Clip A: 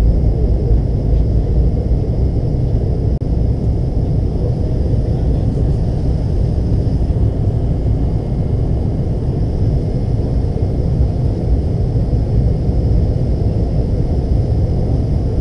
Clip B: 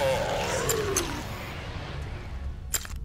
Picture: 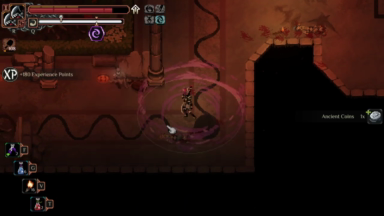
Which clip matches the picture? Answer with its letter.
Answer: B